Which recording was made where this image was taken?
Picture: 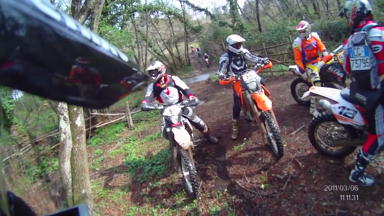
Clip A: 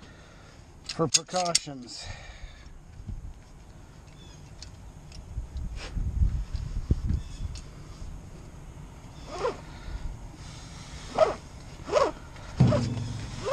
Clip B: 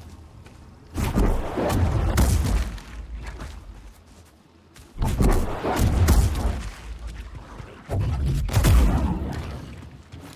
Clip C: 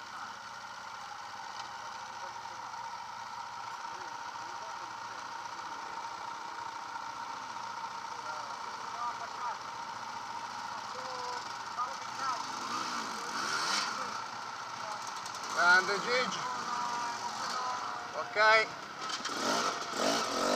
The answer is C